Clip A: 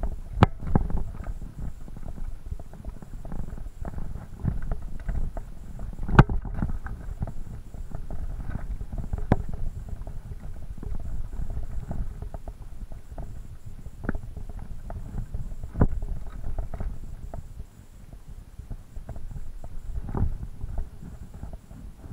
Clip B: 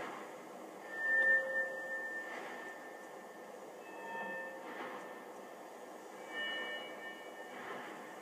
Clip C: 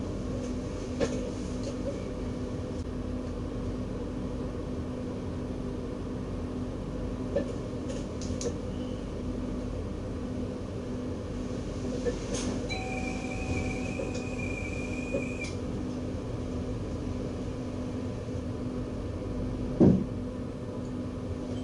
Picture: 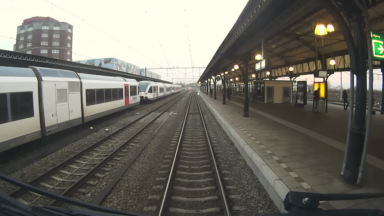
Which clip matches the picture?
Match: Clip C